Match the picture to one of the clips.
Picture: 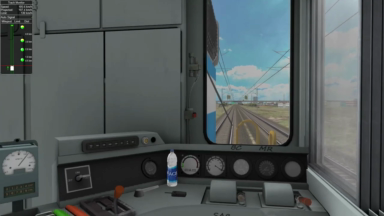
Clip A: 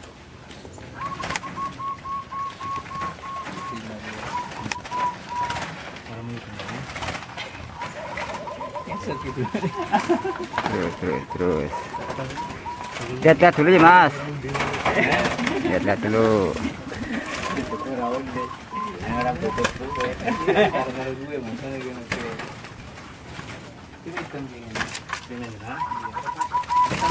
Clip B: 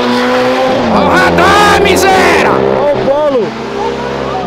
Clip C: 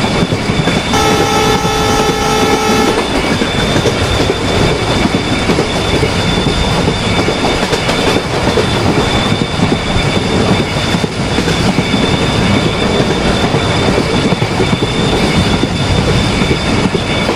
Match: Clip C